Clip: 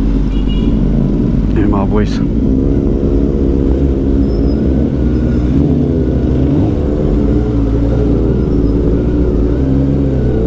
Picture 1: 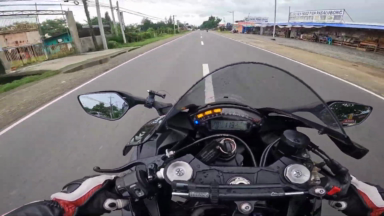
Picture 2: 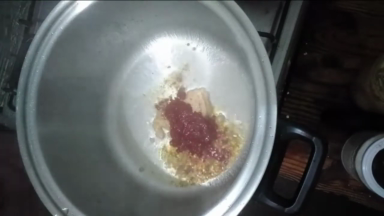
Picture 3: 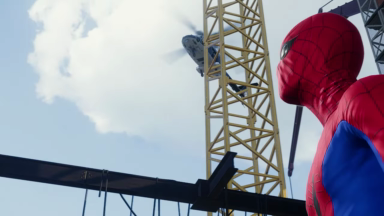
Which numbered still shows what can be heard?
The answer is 1